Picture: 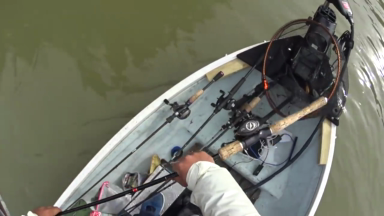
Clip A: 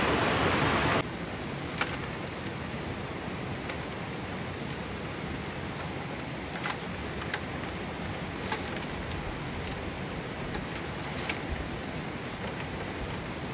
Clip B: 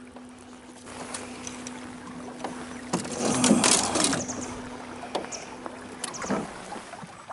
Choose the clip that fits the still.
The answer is B